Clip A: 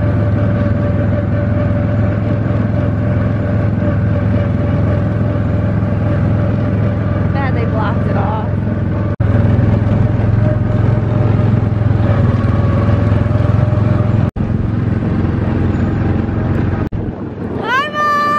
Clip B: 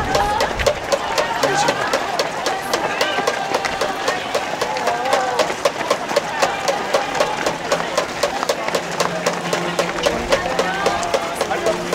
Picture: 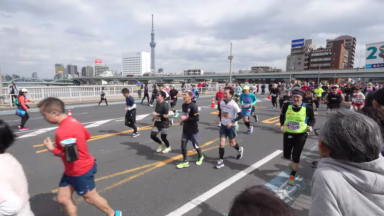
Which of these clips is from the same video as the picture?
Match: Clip B